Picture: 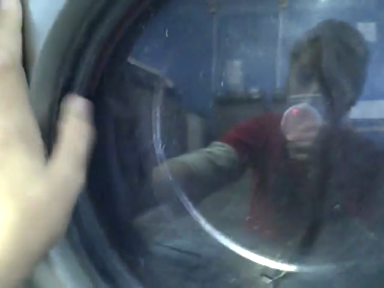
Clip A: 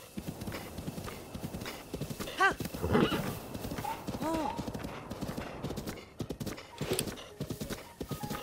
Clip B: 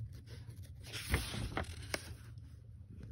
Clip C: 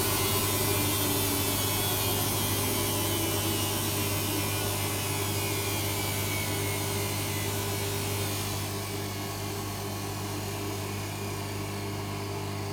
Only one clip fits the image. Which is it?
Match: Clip C